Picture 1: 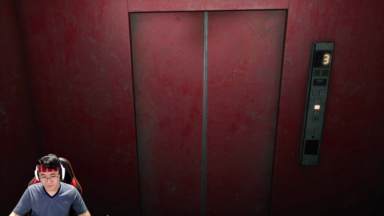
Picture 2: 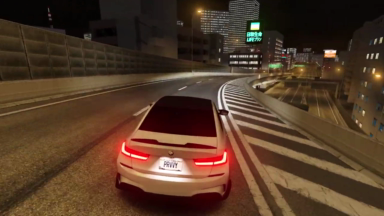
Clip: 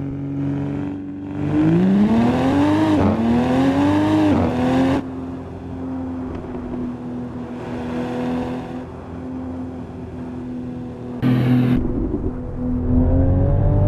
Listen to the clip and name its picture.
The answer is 2